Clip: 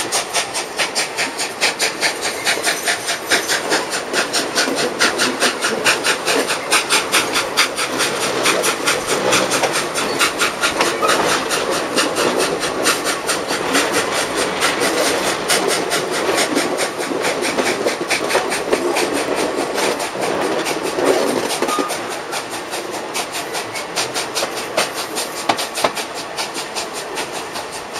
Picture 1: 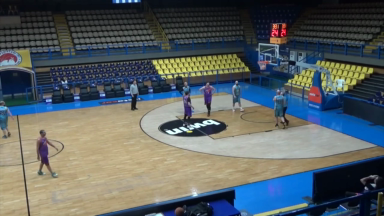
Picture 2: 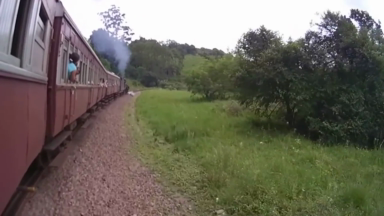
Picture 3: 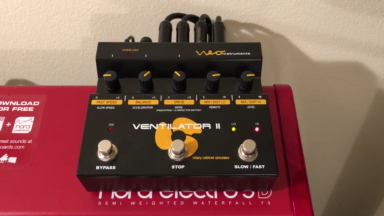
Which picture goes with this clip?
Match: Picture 2